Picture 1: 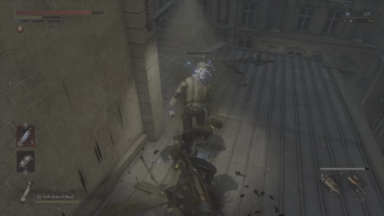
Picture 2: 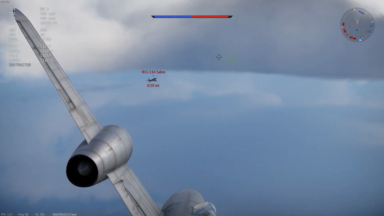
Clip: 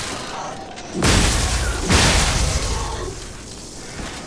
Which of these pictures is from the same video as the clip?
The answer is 1